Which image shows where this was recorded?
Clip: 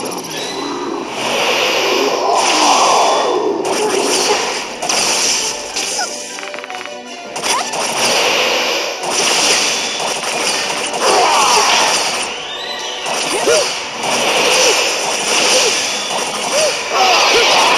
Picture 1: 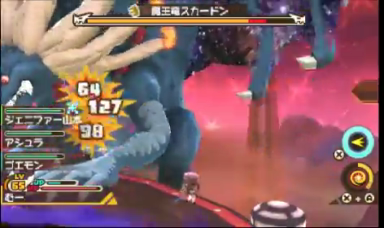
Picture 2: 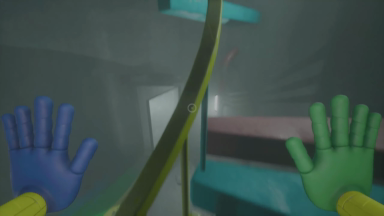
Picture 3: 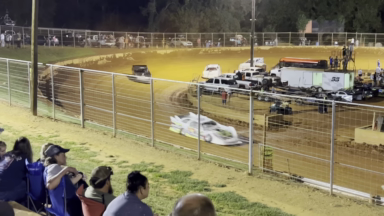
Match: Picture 1